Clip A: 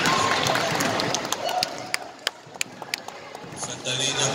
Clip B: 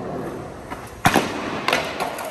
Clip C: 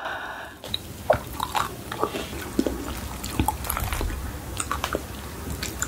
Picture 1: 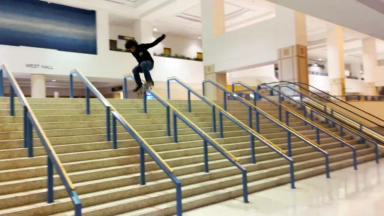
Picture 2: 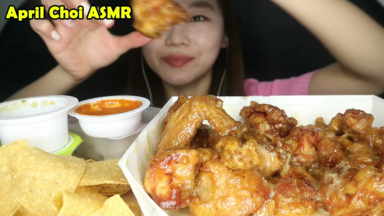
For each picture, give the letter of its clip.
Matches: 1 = B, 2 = C